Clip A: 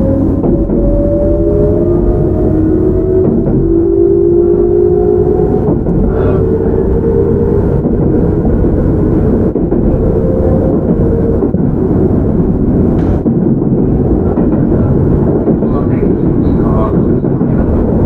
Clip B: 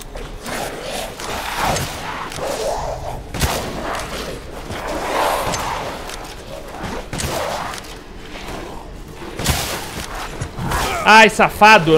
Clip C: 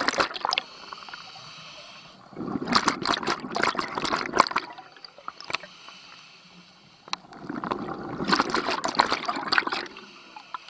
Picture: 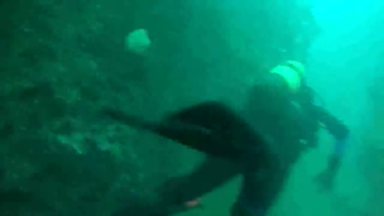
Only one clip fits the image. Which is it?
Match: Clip C